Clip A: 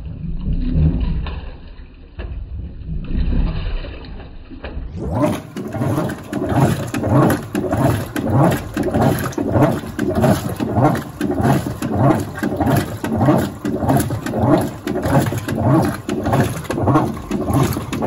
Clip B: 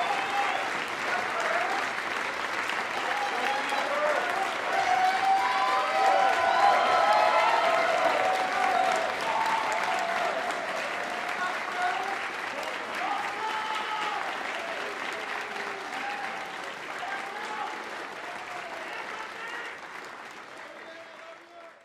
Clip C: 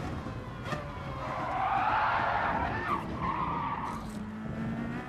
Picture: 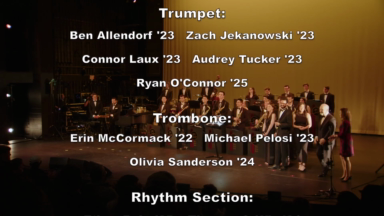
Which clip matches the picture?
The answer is B